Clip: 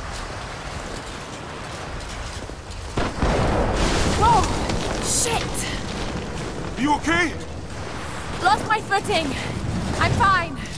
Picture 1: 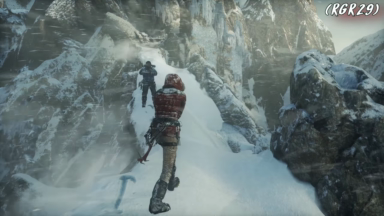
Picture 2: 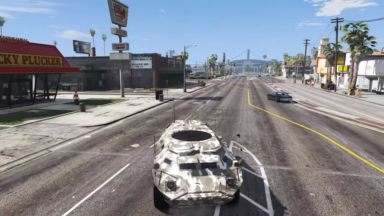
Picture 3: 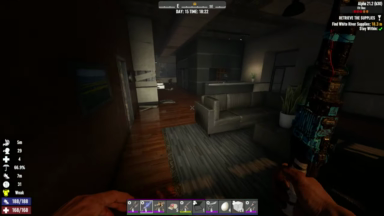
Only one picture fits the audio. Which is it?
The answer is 1